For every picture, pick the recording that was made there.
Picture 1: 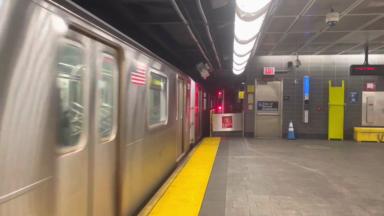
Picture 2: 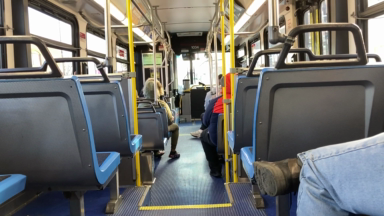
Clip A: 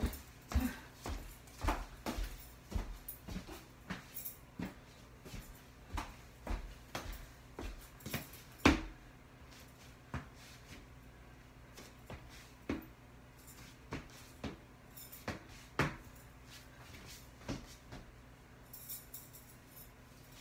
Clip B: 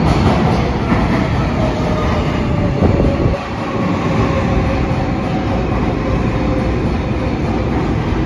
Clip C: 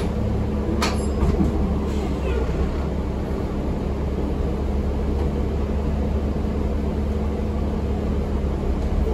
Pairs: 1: B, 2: C